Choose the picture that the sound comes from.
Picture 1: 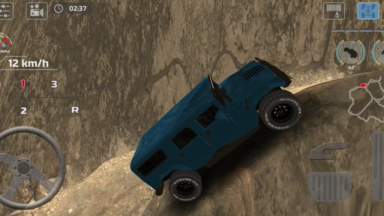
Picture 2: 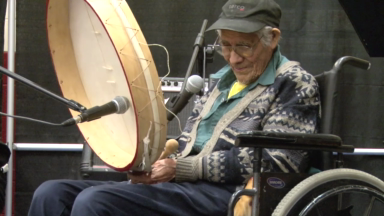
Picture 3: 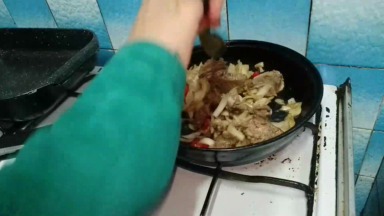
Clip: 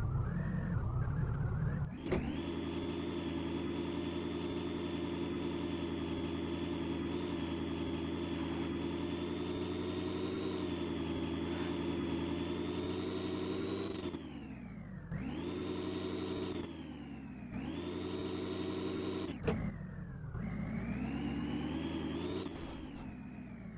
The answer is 1